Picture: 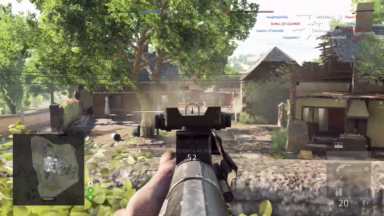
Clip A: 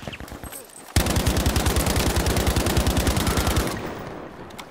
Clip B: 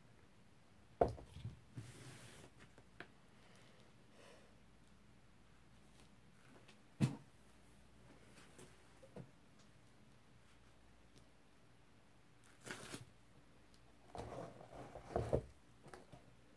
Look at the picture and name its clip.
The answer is A